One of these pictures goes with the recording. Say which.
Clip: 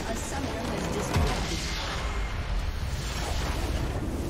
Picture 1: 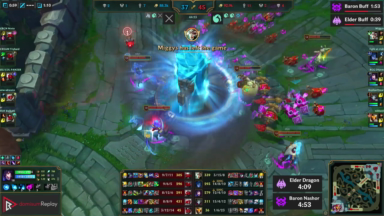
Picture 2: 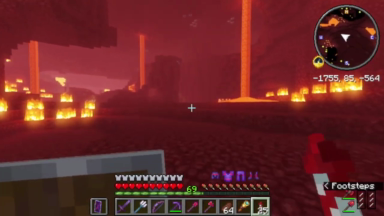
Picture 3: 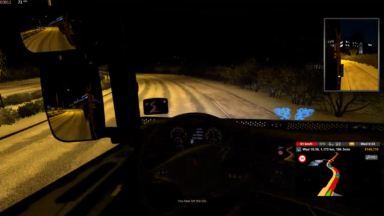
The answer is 1